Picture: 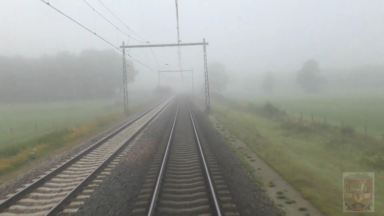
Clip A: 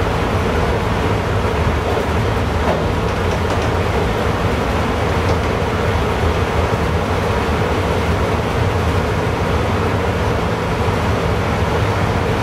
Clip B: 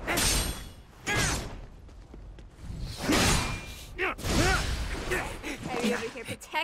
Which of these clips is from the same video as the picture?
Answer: A